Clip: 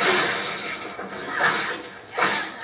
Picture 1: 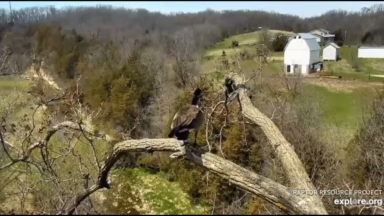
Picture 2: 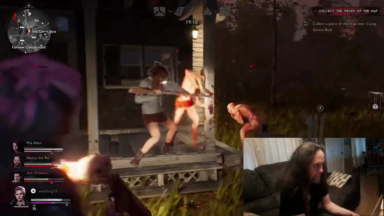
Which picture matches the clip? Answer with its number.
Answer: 2